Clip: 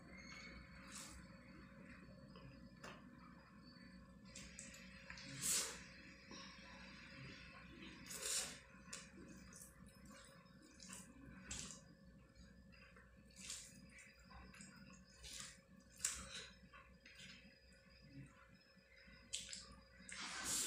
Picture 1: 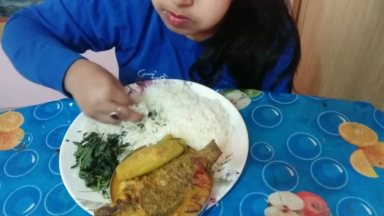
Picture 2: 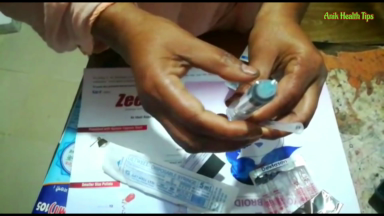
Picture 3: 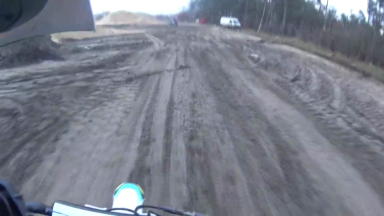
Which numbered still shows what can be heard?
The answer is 1